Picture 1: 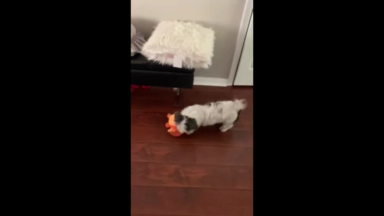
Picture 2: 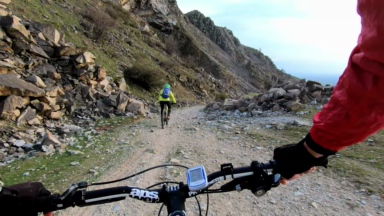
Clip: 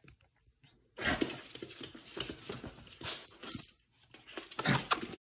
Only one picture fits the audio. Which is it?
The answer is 1